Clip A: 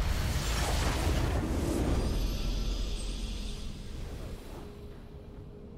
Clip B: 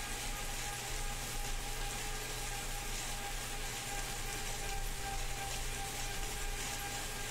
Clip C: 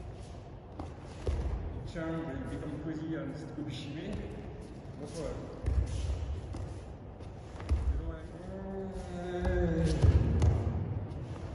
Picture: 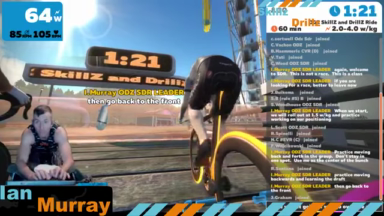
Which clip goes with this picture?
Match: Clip B